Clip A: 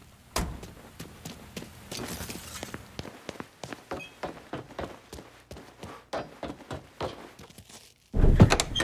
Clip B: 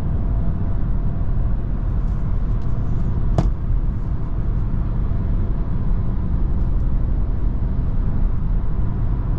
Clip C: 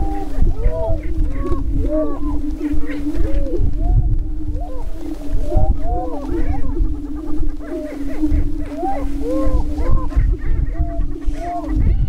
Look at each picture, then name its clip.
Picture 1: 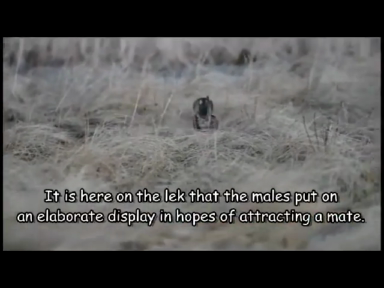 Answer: C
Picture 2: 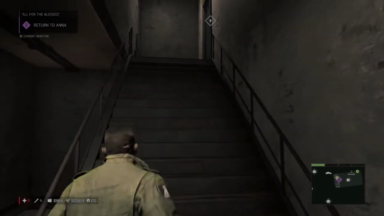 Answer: A